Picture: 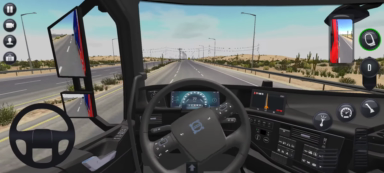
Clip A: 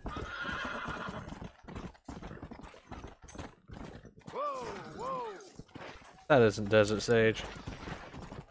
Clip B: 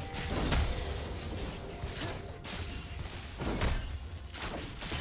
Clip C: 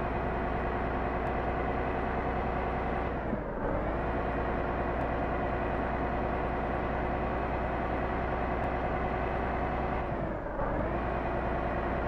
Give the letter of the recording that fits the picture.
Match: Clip C